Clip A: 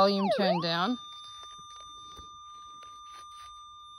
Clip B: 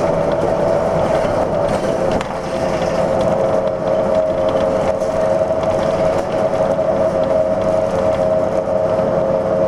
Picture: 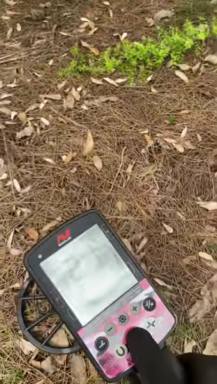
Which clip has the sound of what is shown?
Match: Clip A